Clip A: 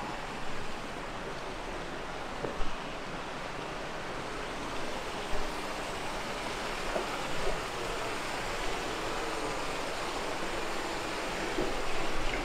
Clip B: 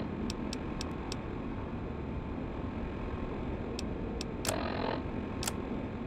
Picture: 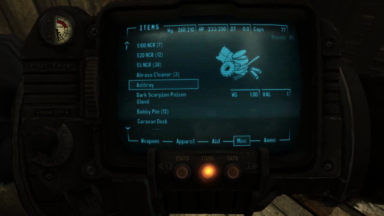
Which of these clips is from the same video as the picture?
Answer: B